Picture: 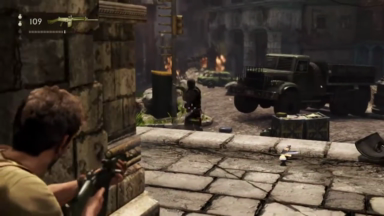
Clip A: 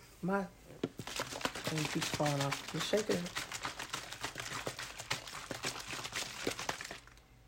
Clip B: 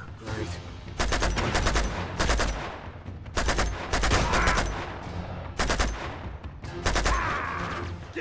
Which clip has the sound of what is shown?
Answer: B